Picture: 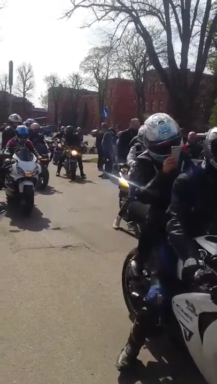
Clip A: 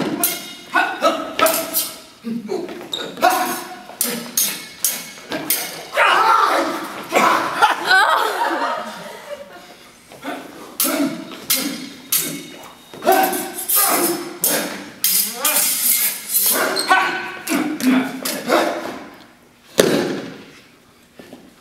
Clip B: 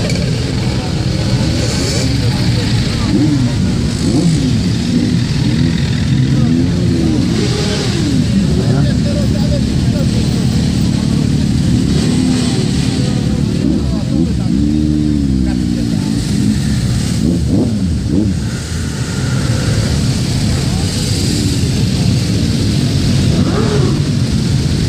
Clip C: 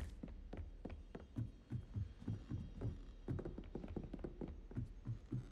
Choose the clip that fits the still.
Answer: B